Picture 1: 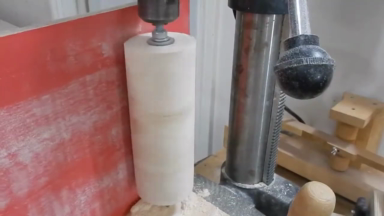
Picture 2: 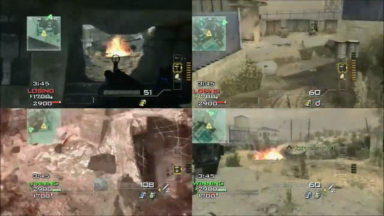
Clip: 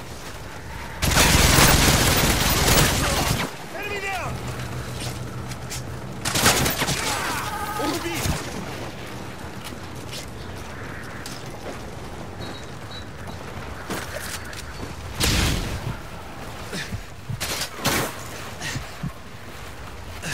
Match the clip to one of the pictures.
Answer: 2